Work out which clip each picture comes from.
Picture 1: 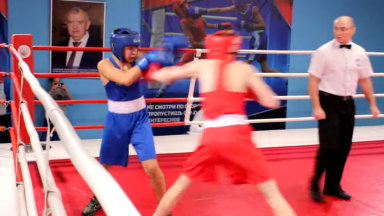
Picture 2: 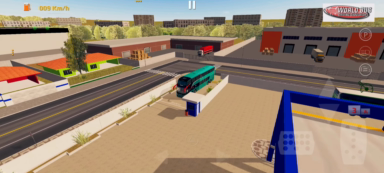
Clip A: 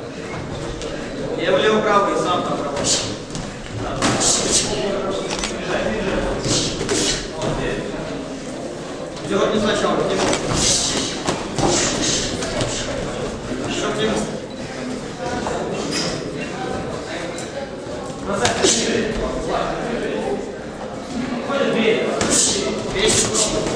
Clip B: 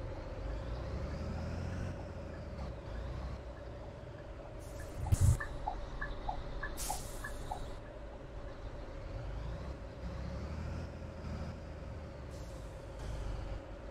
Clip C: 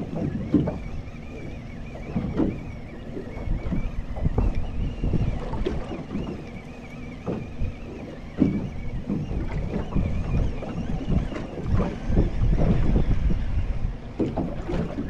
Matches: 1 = A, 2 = B